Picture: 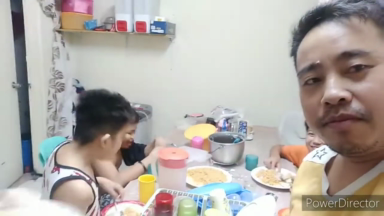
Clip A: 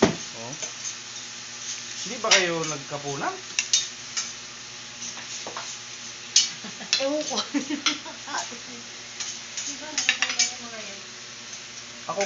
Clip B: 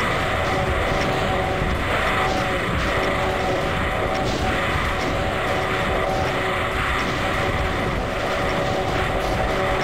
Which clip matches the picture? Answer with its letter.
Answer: A